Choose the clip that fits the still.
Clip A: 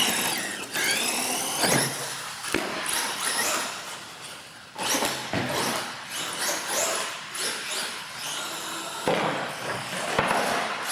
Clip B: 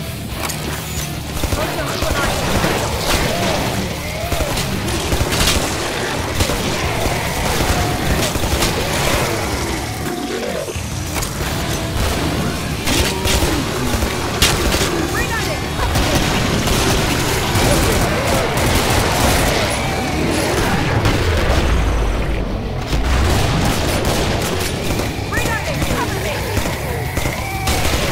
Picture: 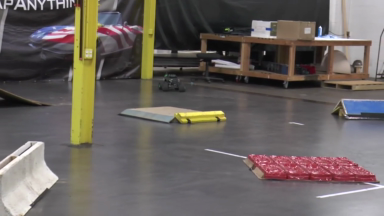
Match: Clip A